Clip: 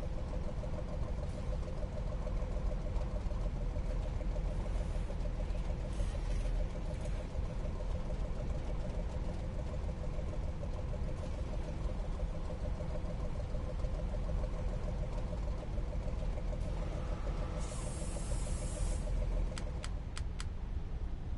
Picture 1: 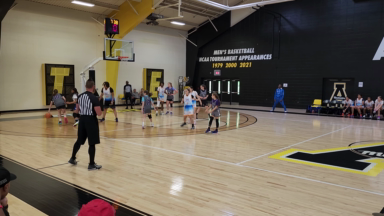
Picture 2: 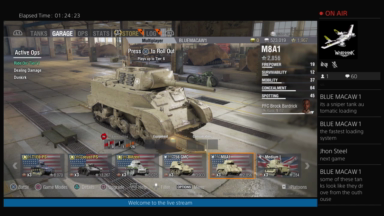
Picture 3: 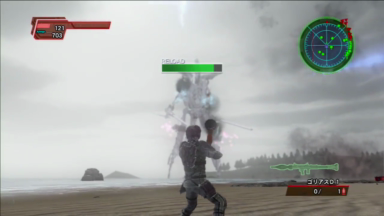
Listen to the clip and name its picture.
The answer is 2